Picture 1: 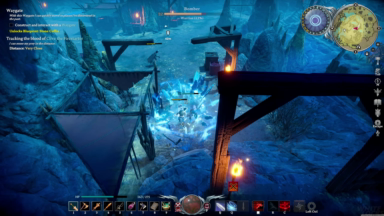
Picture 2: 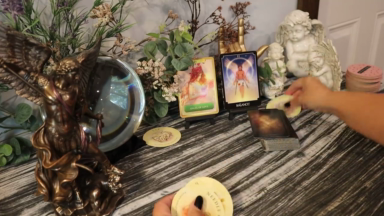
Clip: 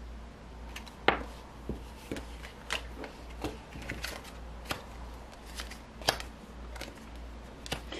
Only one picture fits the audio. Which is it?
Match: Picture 2